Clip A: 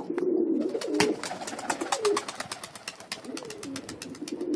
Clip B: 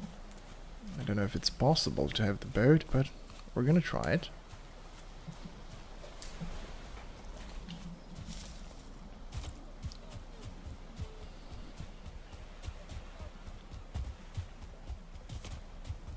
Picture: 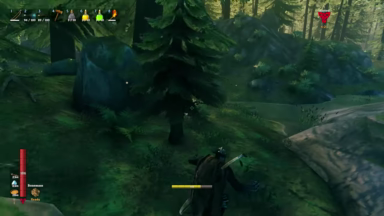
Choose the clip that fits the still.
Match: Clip B